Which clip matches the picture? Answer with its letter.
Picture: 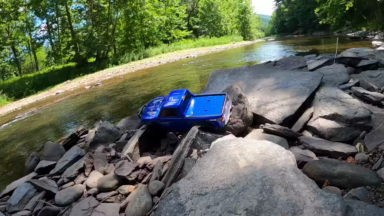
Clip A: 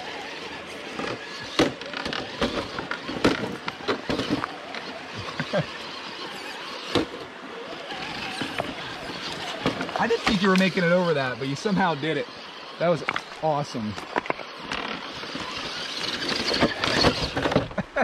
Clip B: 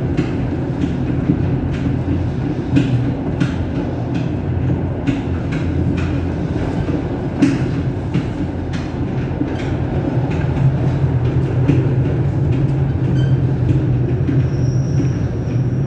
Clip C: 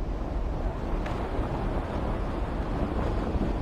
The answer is A